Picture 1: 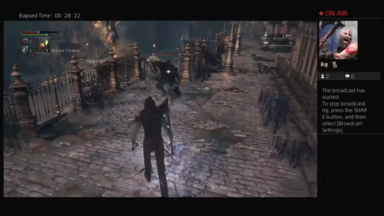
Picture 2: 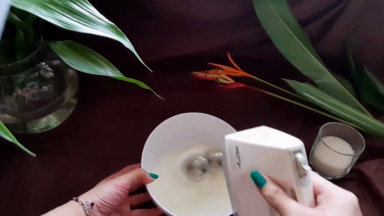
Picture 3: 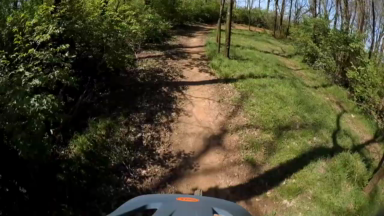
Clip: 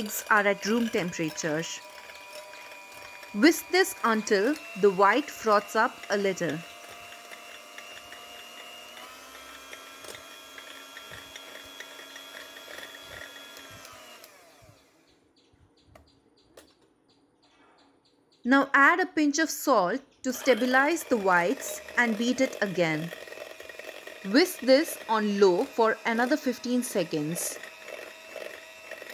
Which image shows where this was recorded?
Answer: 2